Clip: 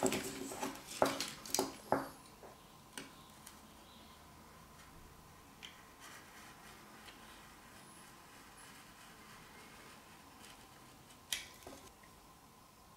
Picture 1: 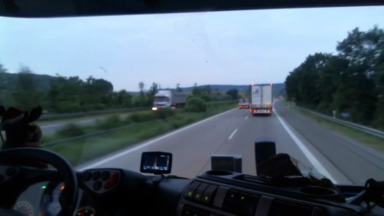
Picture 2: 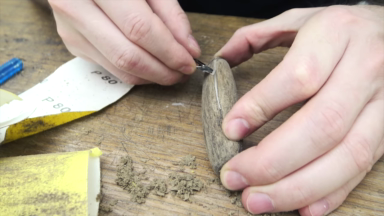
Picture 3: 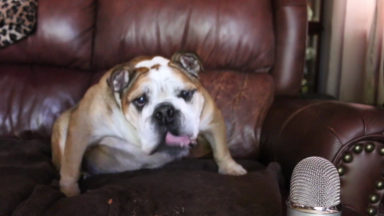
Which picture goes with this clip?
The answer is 2